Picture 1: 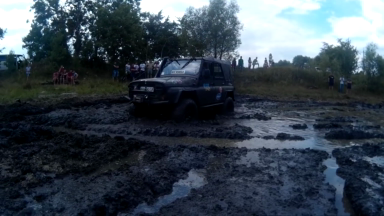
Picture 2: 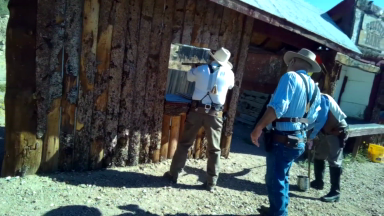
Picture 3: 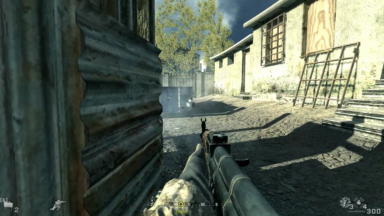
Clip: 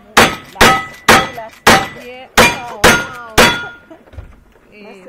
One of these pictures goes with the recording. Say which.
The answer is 2